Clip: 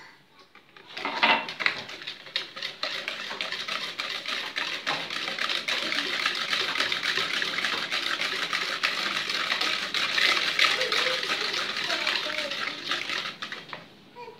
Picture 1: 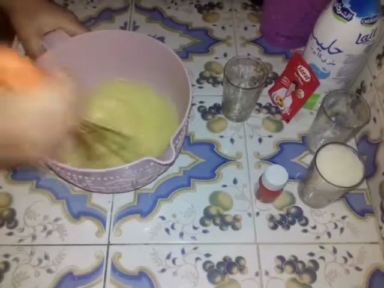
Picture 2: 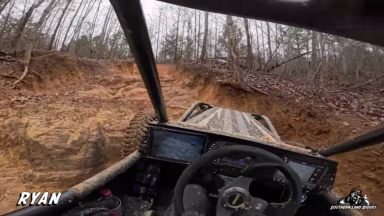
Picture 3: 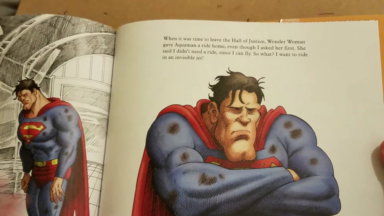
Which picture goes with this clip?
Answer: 1